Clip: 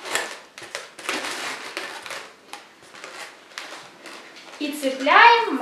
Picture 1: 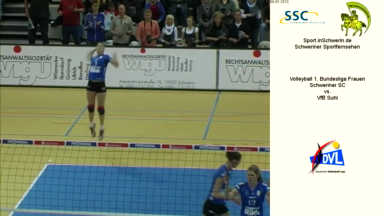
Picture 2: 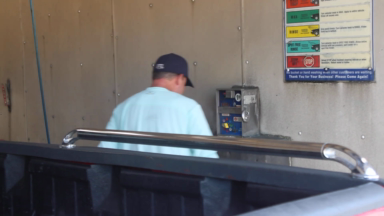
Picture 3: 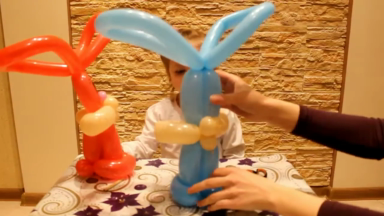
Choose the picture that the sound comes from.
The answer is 3